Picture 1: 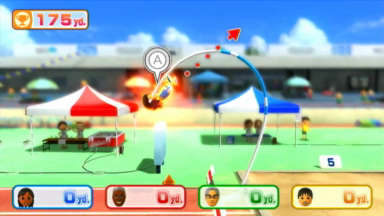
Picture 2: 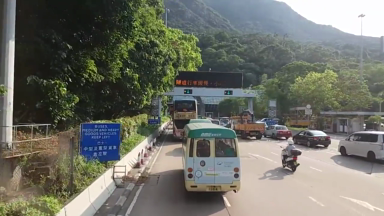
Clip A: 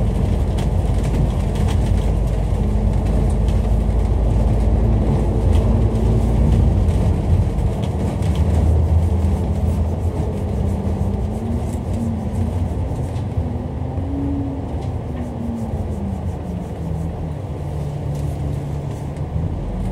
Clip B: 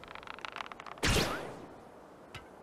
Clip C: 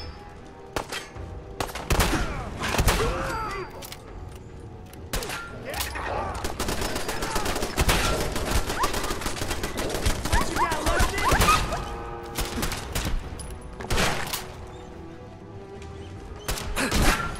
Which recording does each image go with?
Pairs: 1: B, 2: A